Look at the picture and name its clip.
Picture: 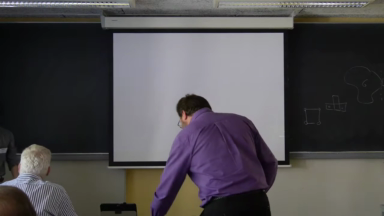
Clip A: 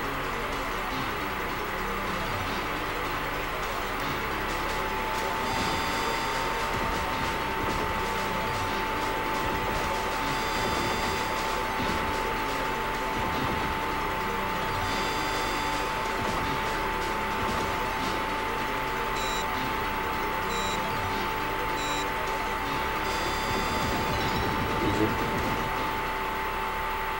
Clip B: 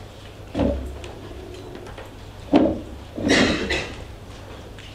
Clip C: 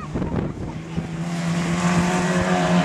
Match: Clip B